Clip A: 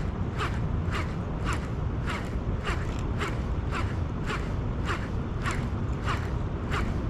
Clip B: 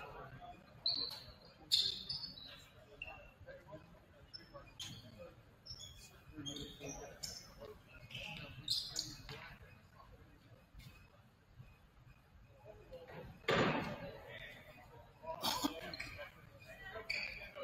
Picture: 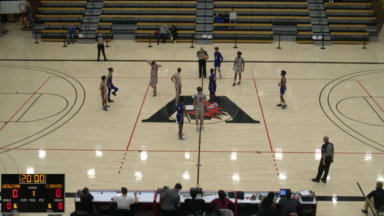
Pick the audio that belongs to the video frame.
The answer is B